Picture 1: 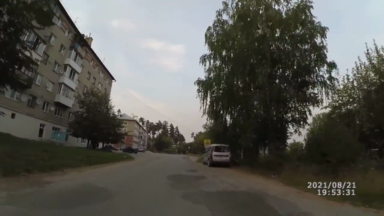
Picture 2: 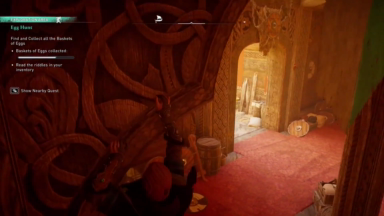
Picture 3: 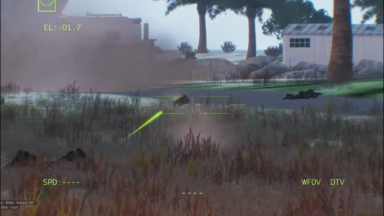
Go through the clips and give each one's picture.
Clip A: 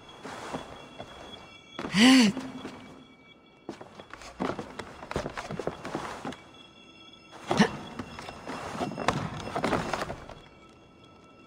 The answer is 2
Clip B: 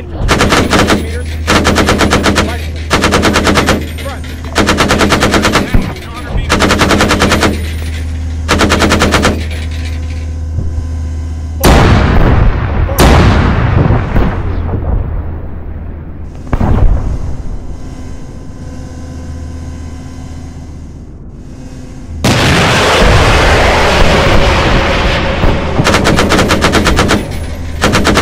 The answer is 3